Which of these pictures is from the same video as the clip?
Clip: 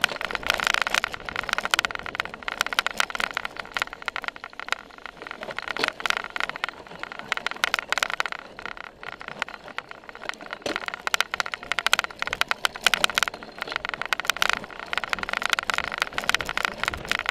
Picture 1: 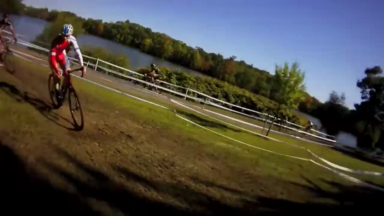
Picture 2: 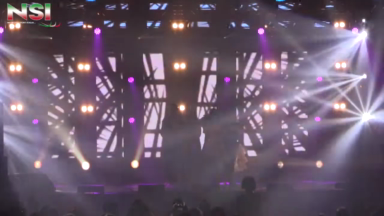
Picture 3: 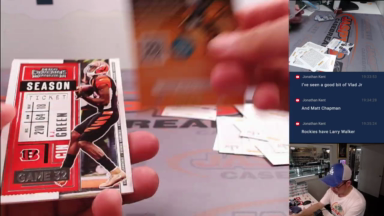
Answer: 1